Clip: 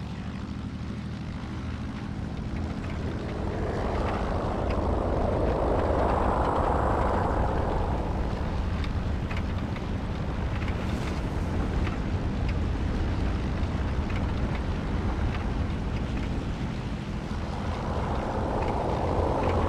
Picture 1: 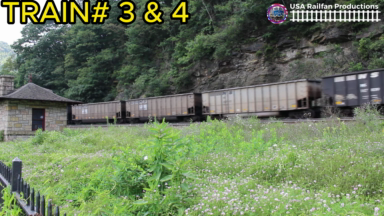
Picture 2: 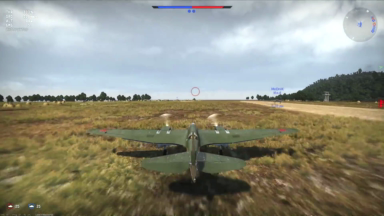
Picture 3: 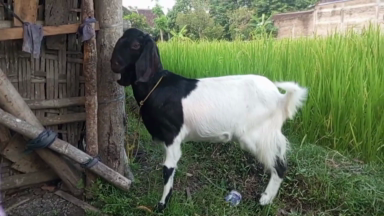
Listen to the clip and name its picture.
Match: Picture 2